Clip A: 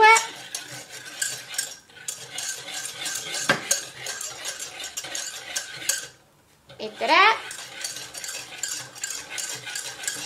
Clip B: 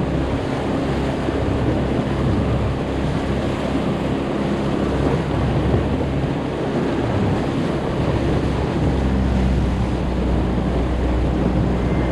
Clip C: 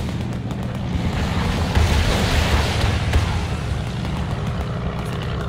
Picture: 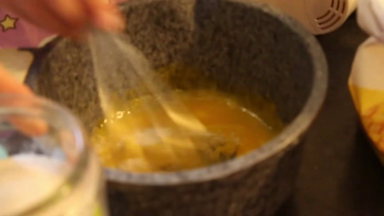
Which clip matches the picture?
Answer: A